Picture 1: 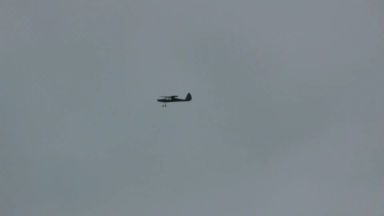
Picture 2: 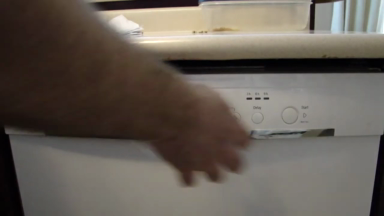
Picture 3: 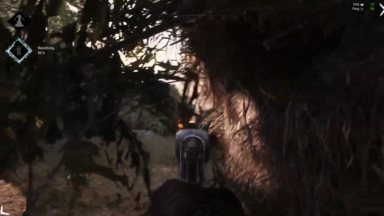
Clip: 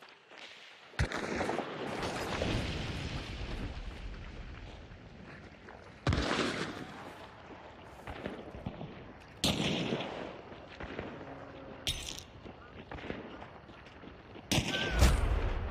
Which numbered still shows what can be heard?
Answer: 3